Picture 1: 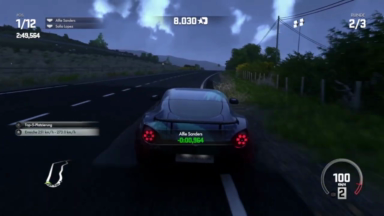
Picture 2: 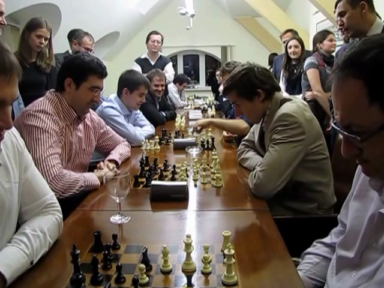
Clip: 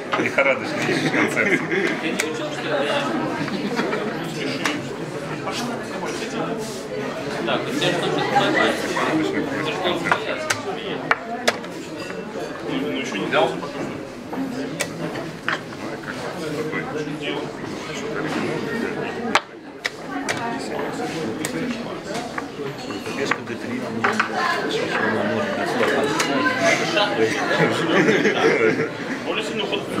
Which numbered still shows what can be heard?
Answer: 2